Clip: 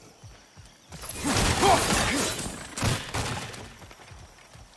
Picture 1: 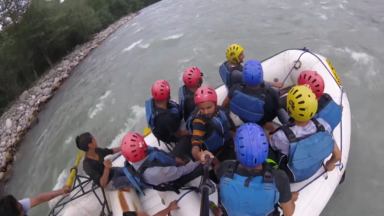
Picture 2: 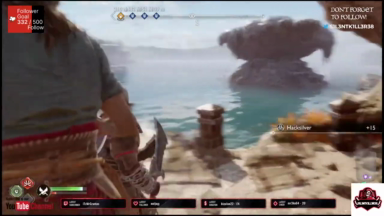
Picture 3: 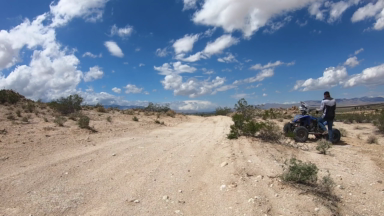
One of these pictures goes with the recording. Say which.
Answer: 2